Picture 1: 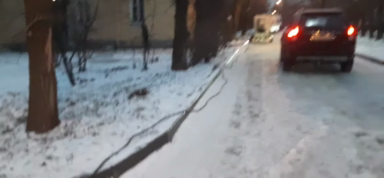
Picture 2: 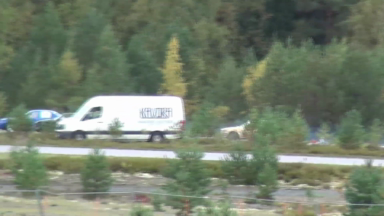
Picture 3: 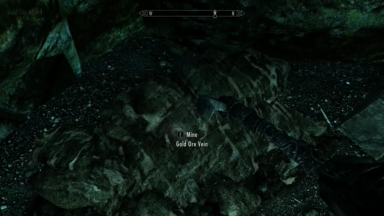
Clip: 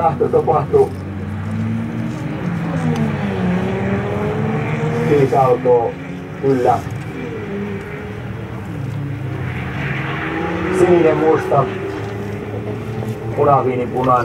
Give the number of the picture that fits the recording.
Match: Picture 2